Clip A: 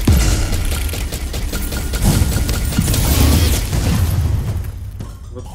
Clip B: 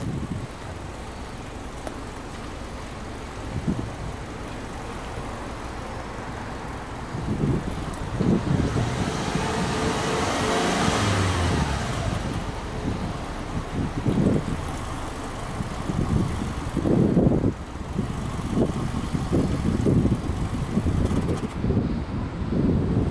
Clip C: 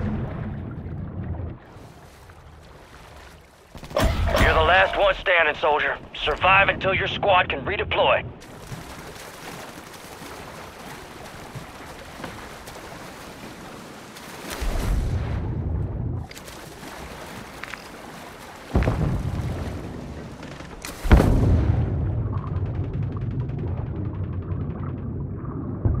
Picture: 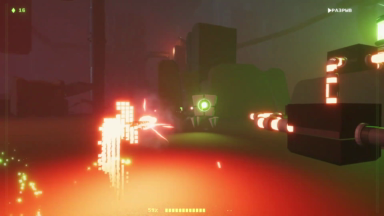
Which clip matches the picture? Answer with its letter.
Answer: A